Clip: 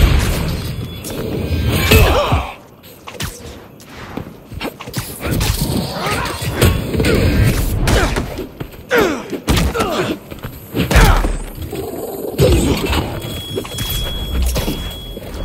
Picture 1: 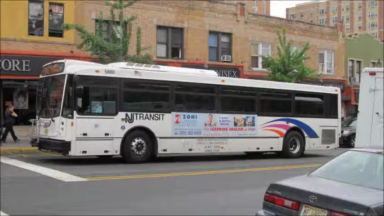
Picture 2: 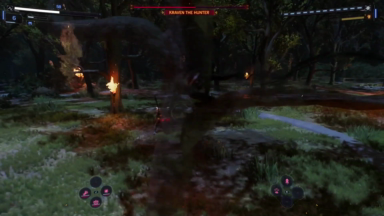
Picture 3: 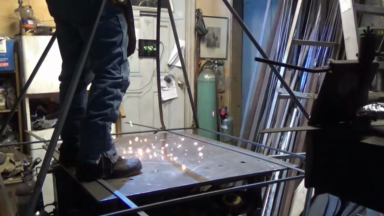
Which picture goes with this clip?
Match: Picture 2